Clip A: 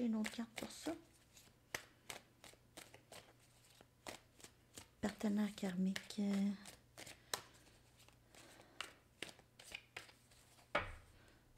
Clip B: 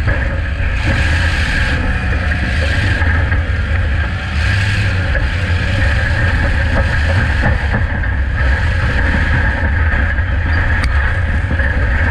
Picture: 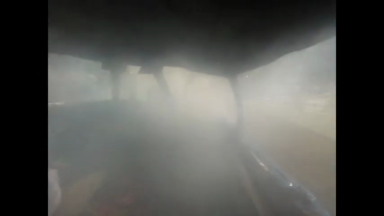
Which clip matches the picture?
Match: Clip B